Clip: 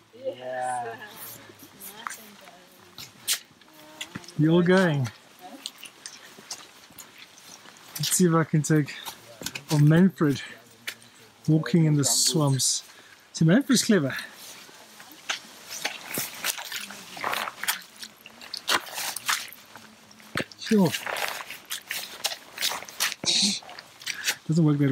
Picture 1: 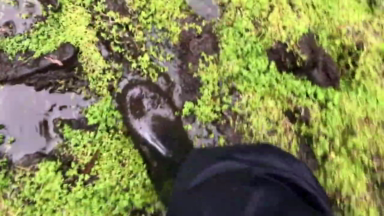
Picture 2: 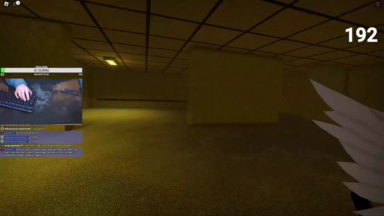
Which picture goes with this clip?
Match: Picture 1